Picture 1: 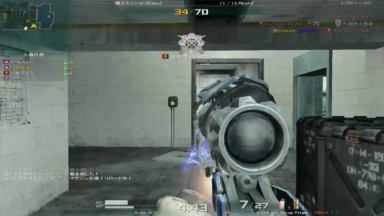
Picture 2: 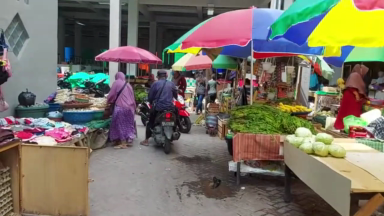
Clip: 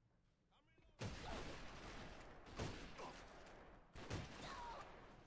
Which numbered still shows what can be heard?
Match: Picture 1